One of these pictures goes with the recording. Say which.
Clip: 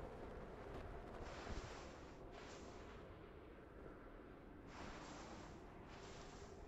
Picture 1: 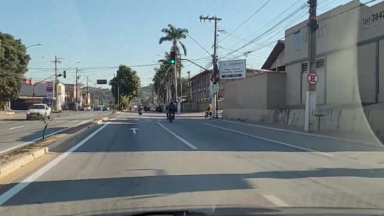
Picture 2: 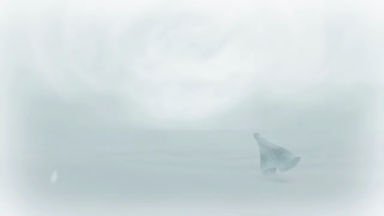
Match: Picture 2